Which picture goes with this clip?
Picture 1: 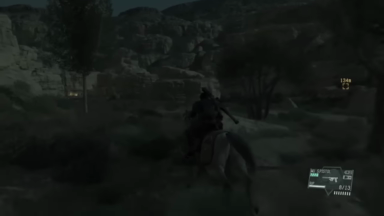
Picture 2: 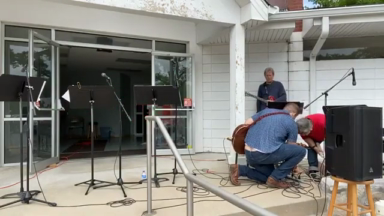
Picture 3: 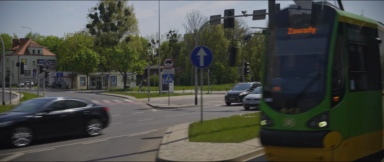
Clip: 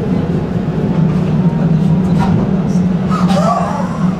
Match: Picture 3